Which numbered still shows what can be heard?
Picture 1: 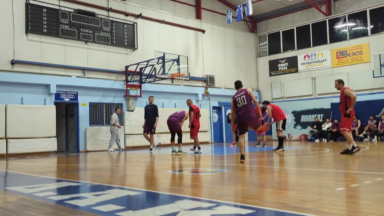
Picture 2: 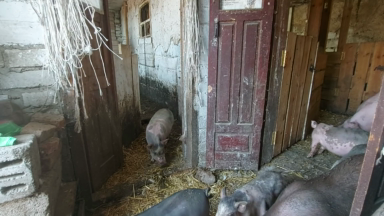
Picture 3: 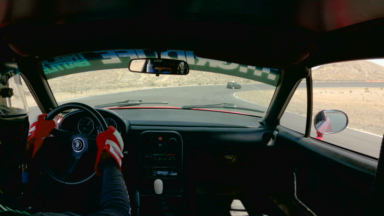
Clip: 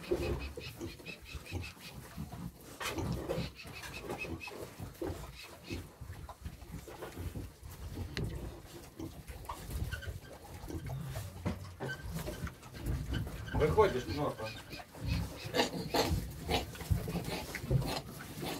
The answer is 2